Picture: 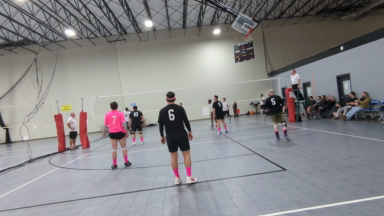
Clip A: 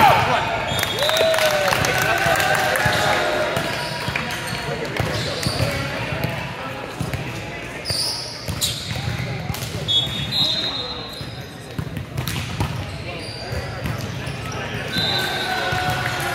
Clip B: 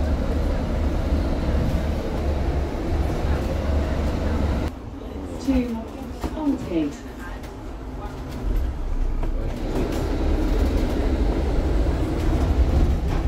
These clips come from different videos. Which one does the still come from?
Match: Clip A